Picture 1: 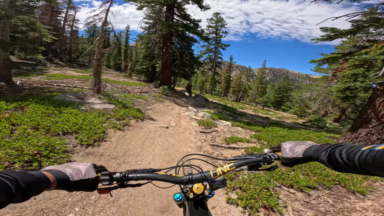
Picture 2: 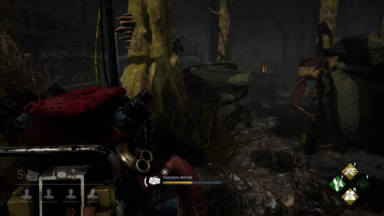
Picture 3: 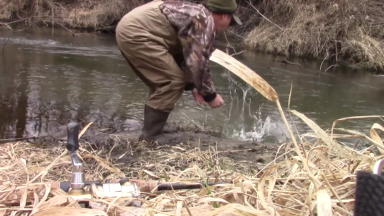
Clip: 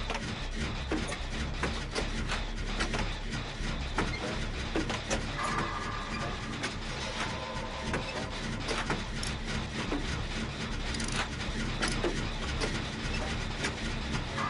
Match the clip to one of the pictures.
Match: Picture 2